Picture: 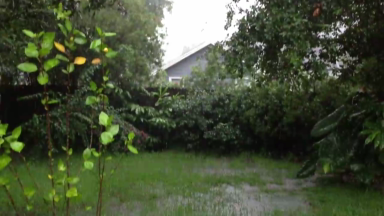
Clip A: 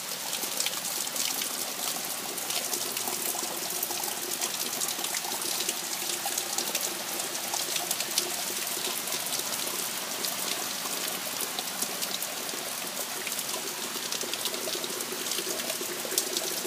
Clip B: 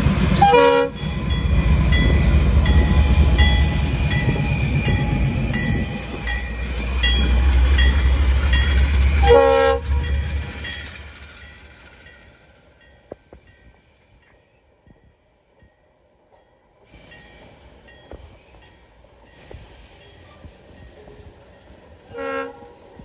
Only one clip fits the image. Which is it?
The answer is A